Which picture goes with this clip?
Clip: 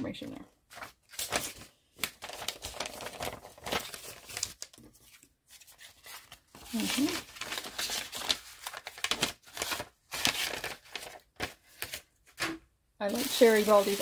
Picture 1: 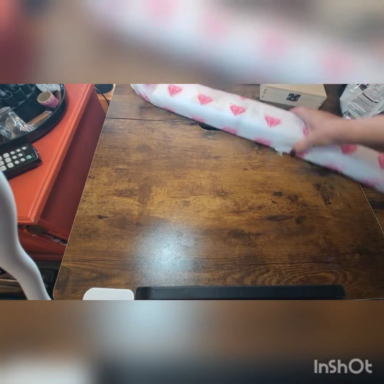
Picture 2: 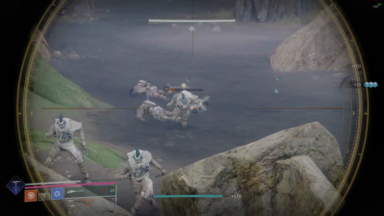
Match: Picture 1